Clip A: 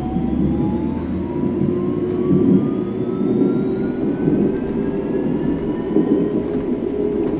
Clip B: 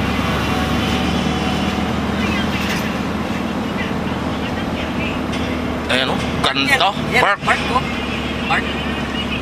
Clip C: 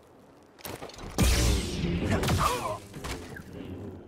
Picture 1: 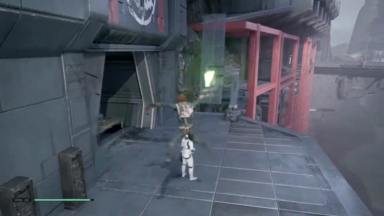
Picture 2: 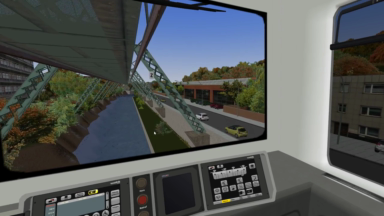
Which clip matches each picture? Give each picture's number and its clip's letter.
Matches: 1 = C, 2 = A